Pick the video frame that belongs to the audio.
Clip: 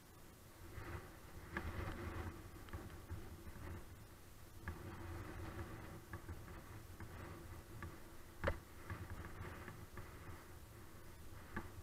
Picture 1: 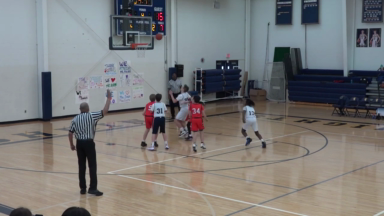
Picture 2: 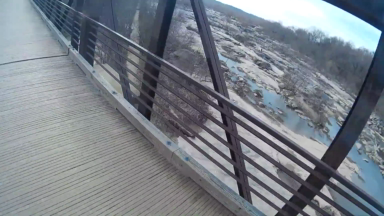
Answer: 2